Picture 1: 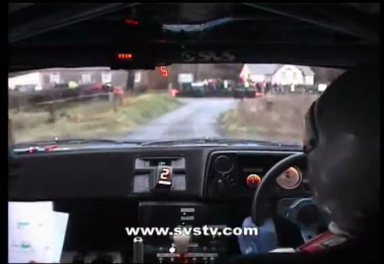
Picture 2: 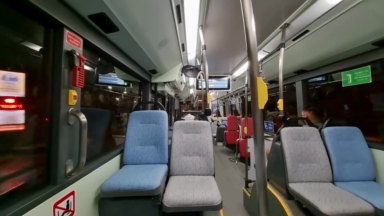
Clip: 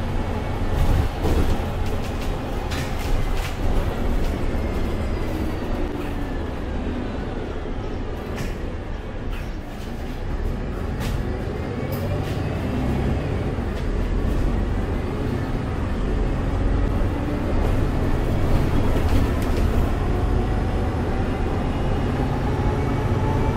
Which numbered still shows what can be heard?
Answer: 2